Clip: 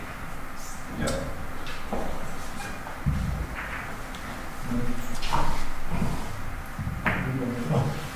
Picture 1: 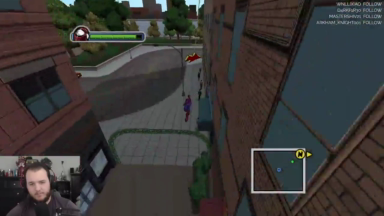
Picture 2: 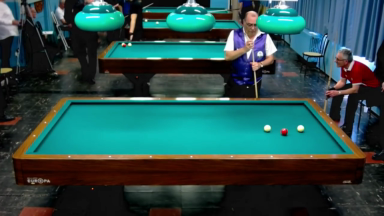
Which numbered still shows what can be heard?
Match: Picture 2